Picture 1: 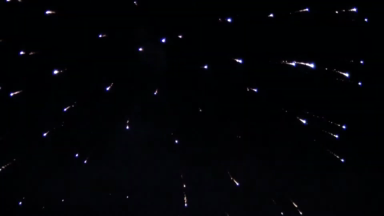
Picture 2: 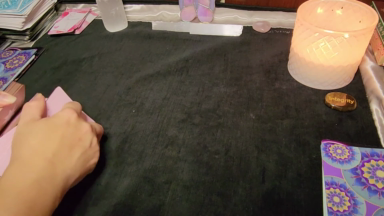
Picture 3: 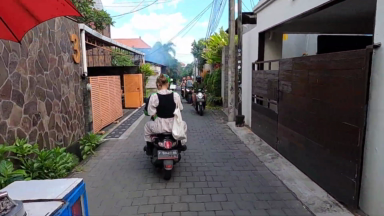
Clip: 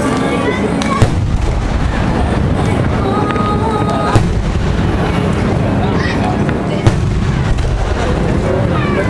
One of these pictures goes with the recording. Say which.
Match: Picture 1